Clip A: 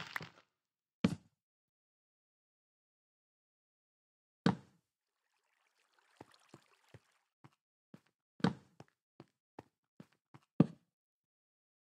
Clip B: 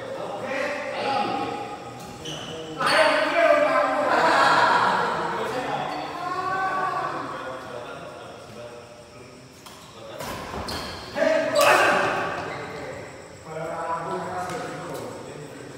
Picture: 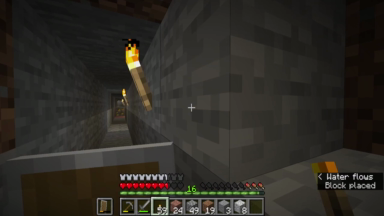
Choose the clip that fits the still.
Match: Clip A